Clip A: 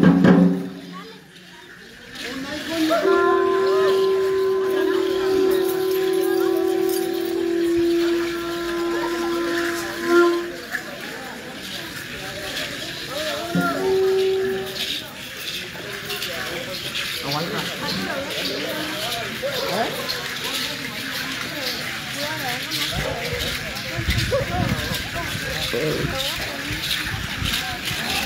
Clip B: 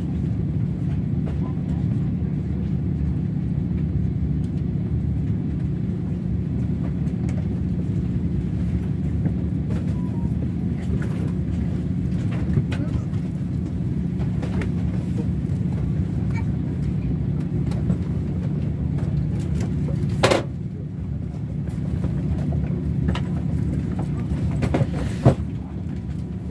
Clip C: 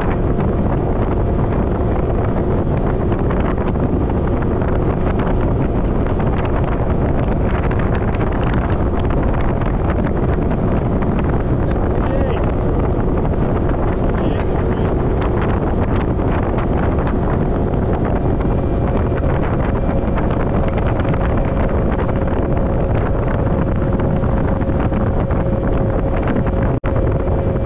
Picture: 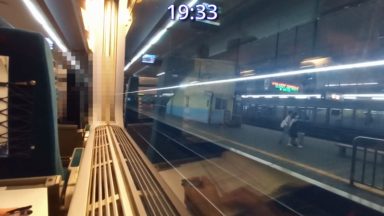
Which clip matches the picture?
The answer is B